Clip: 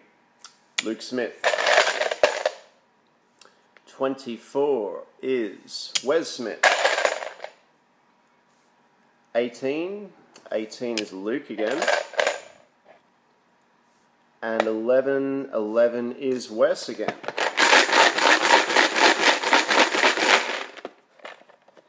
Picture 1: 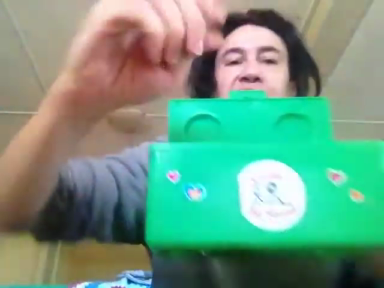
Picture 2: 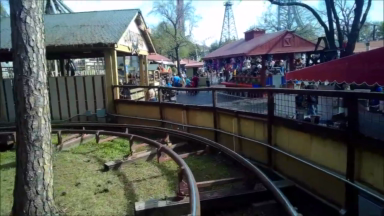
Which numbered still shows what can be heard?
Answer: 1